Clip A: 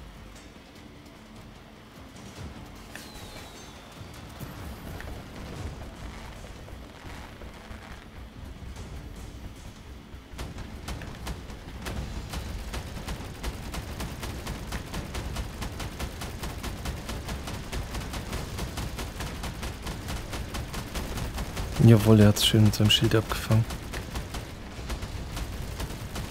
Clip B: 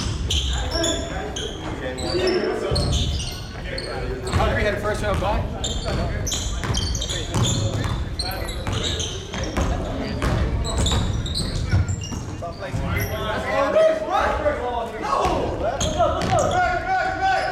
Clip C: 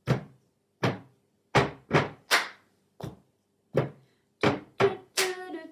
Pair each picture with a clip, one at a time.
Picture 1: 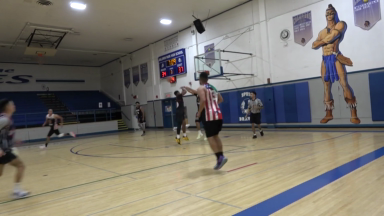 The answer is B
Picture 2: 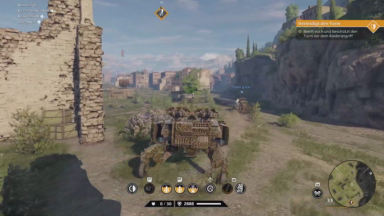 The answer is A